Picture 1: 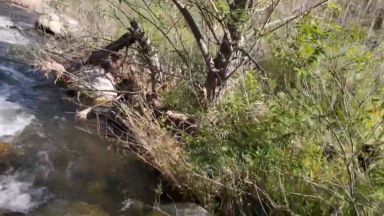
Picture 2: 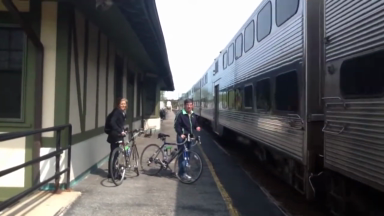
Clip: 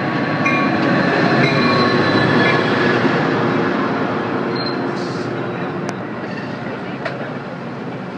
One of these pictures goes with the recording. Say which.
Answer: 2